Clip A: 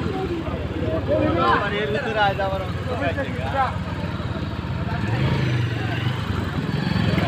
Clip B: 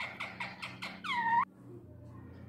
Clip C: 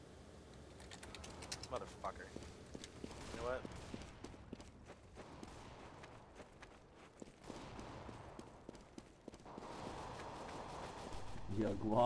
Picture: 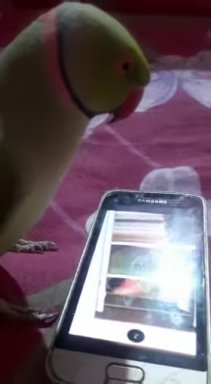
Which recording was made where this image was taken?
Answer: B